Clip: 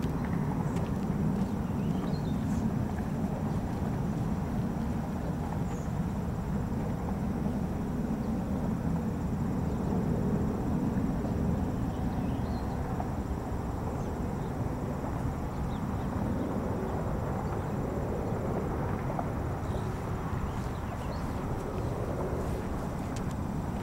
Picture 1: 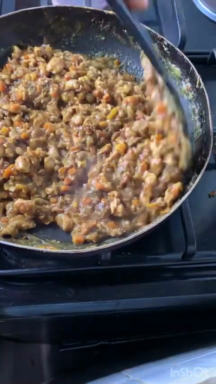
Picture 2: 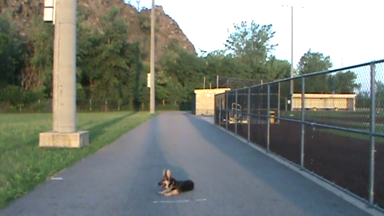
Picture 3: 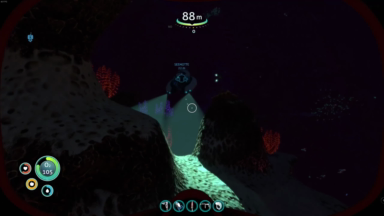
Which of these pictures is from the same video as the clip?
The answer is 2